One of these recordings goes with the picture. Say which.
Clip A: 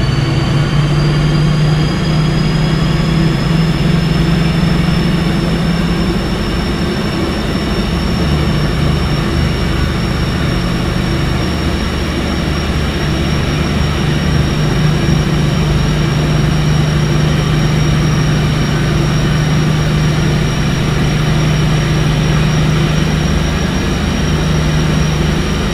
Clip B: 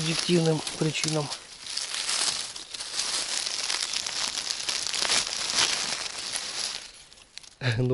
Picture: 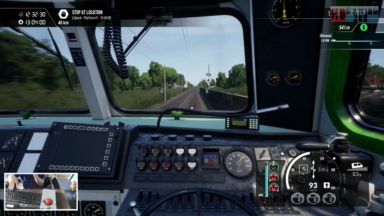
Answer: A